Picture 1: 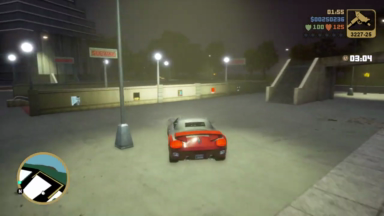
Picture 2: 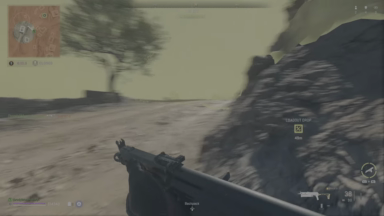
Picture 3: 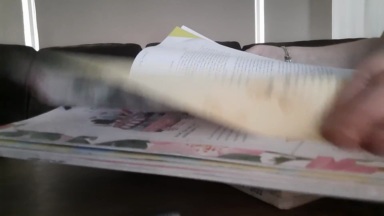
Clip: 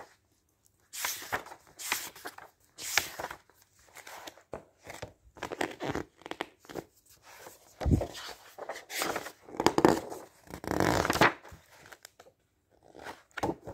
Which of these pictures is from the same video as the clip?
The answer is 3